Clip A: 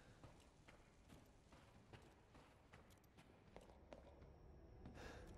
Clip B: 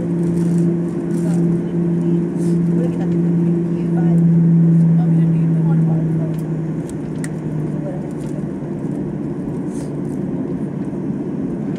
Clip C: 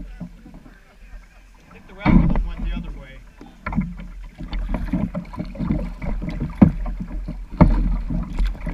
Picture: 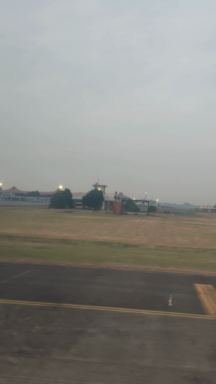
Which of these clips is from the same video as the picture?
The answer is B